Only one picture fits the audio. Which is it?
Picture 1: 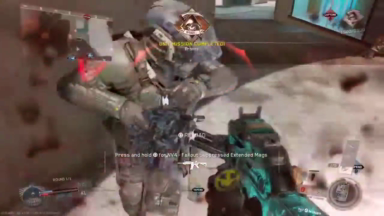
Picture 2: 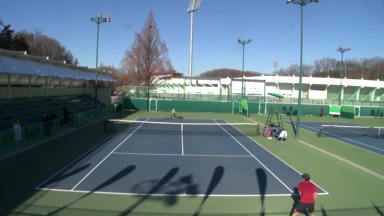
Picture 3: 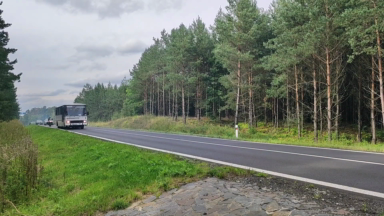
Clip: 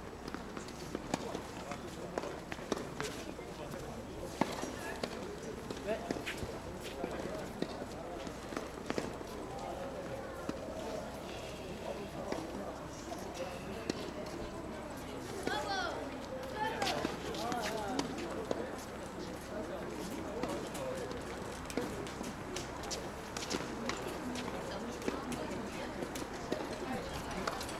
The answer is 2